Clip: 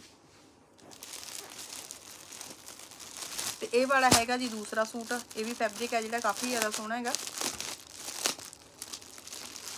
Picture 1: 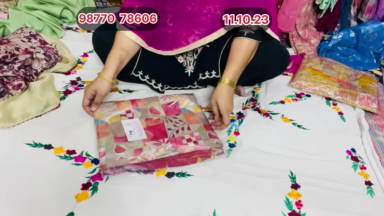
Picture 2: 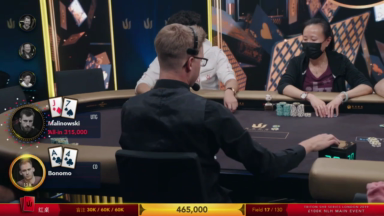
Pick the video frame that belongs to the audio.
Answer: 1